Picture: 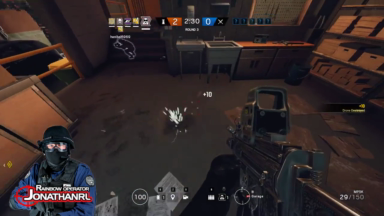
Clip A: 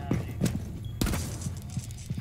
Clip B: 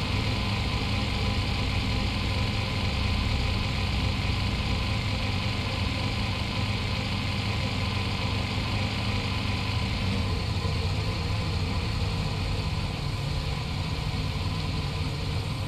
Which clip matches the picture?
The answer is A